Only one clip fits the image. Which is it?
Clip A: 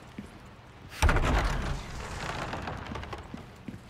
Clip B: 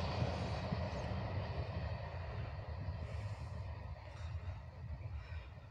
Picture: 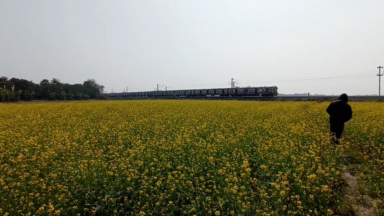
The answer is B